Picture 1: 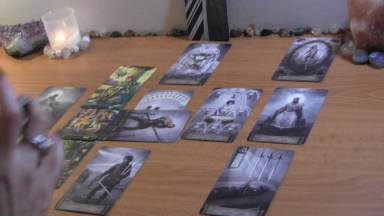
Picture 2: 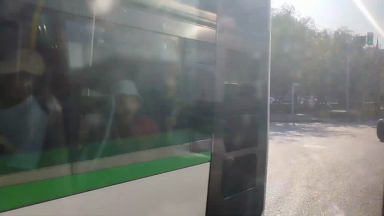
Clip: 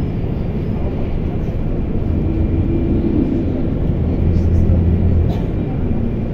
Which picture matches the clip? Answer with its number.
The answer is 2